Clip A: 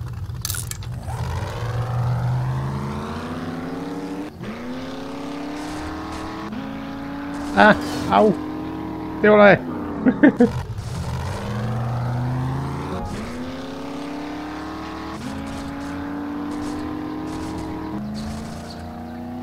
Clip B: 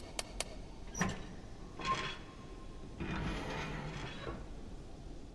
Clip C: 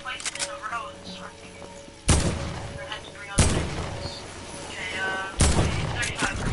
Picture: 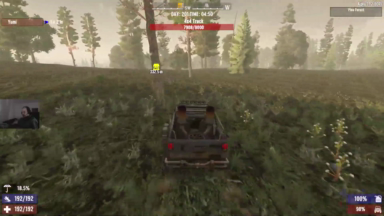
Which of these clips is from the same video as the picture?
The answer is A